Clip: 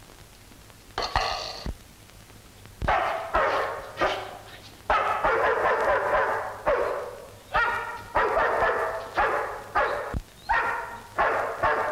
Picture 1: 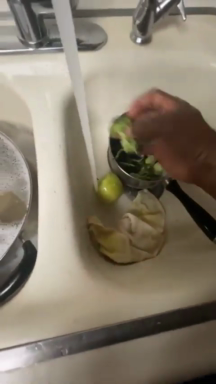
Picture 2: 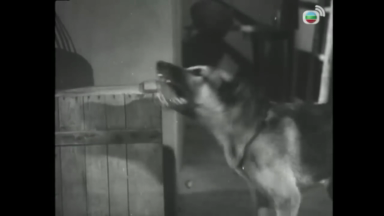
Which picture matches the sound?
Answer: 2